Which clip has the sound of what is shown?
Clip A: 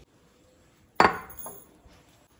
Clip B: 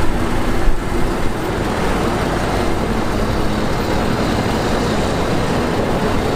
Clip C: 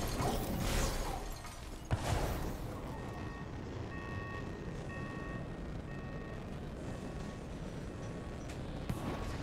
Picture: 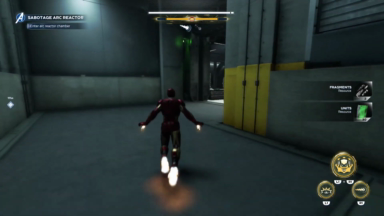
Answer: C